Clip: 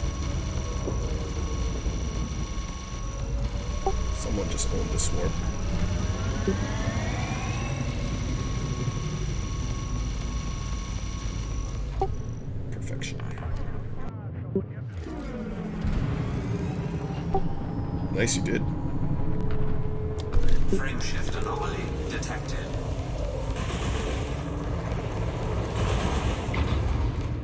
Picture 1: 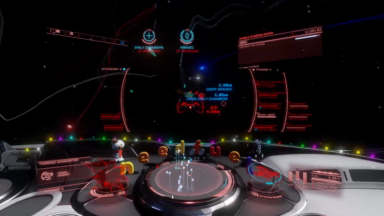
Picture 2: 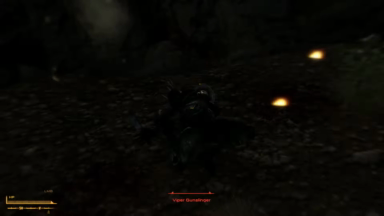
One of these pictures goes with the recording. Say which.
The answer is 1